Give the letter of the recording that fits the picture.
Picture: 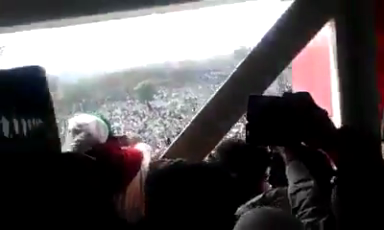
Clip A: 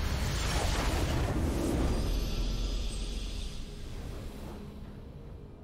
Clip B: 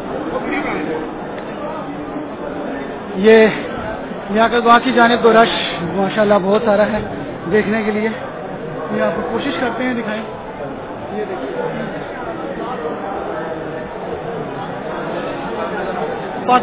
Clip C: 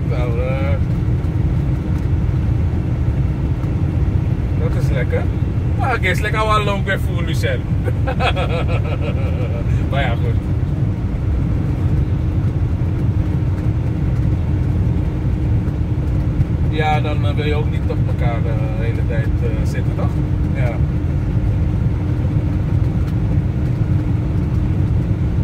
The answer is B